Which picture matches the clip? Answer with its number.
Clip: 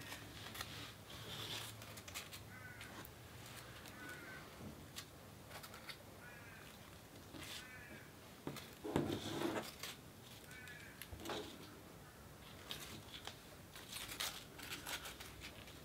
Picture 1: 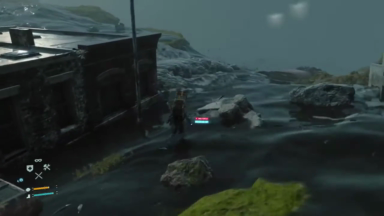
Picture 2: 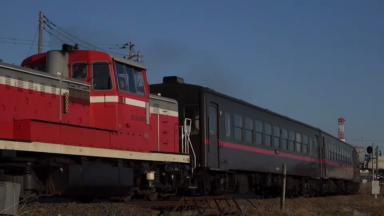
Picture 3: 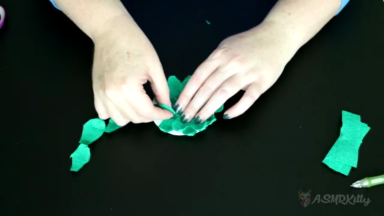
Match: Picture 3